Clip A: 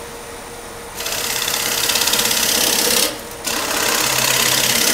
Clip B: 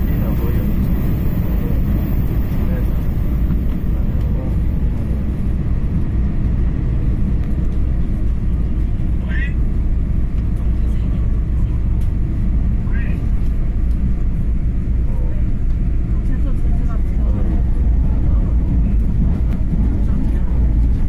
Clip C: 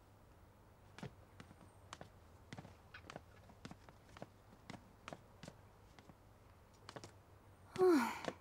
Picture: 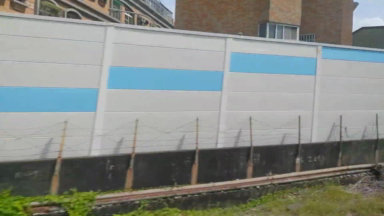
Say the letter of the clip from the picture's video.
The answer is B